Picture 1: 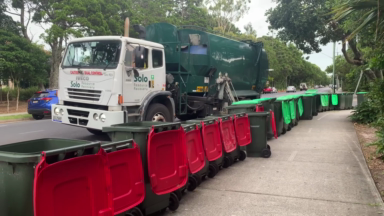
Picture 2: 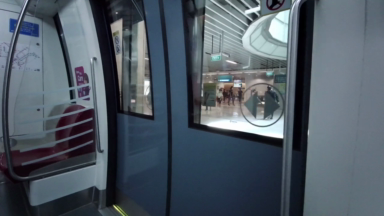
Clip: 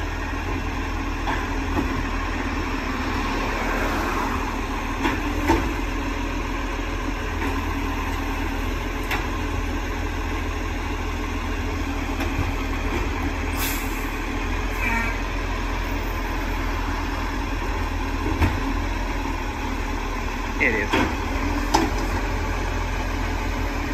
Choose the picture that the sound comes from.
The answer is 1